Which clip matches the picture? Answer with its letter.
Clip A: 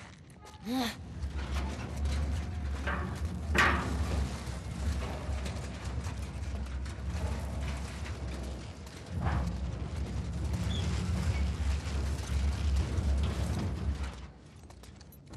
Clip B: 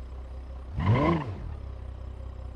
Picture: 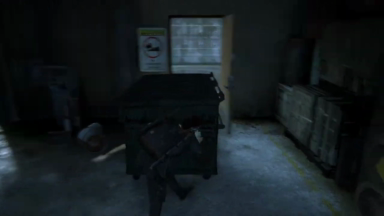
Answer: A